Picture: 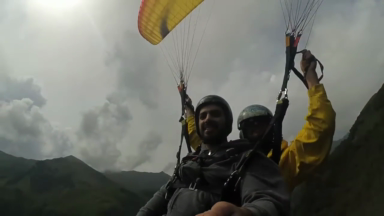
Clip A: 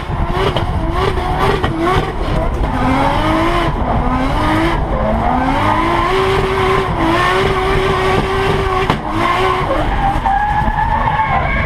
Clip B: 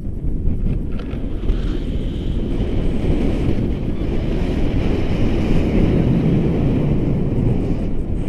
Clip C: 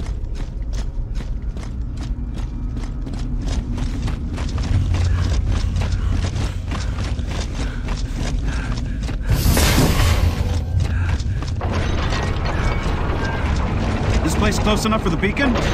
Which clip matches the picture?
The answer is B